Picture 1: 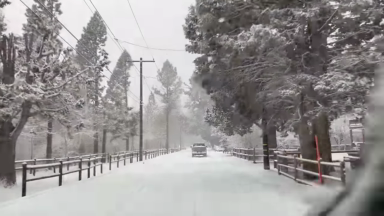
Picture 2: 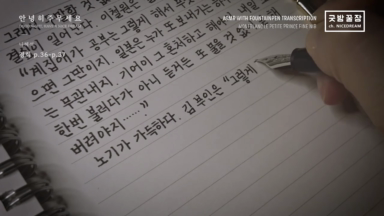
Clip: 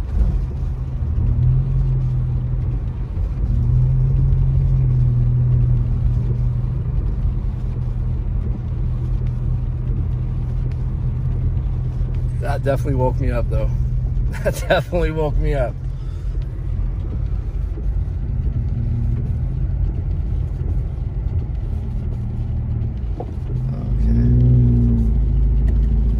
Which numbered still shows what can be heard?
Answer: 1